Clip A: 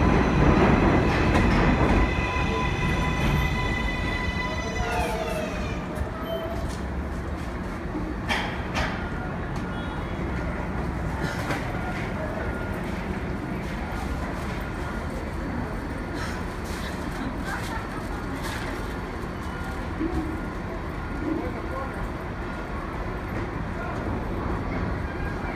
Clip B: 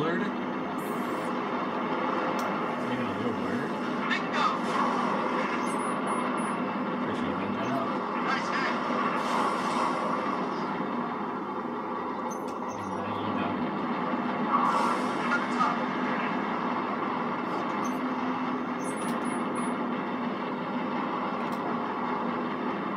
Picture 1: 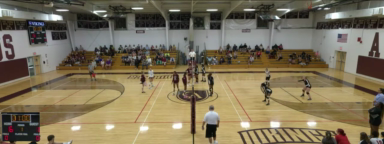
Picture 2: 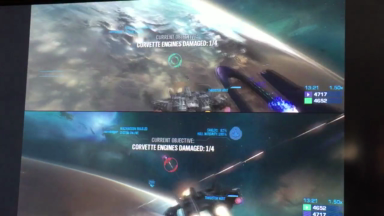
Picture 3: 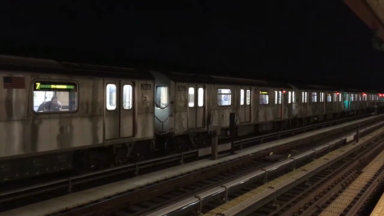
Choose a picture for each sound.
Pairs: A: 3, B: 2